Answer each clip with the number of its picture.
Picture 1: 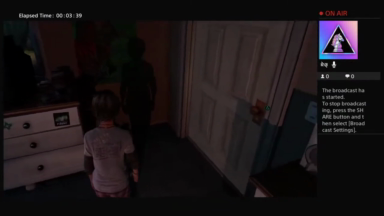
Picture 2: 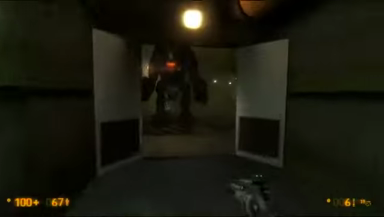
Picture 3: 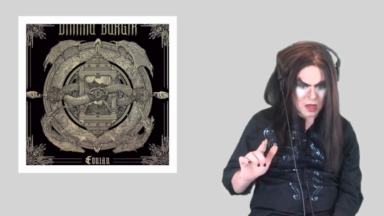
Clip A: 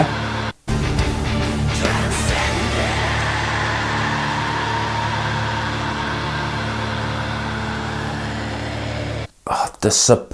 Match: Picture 3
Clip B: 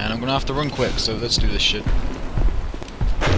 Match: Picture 2